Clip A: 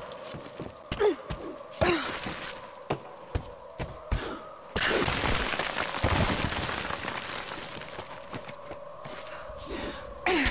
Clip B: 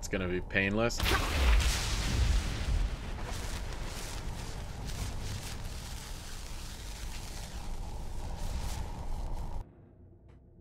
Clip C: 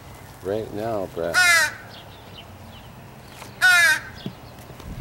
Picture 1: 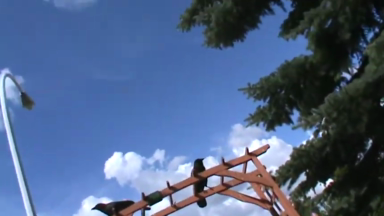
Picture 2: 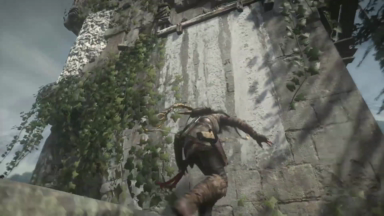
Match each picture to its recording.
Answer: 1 C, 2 A